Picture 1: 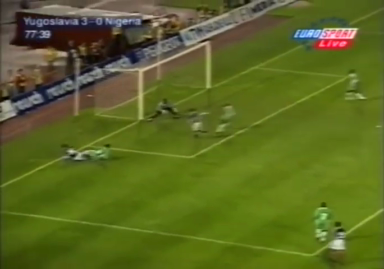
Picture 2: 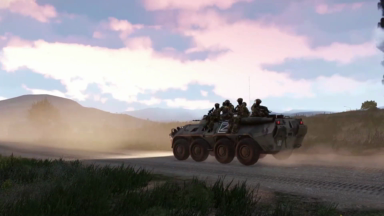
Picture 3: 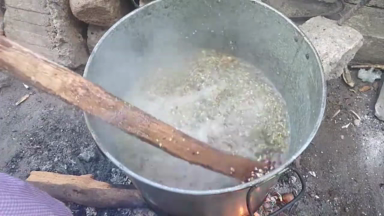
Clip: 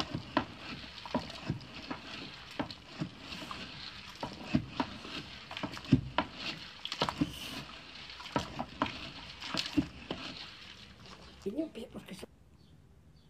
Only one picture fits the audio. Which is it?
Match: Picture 3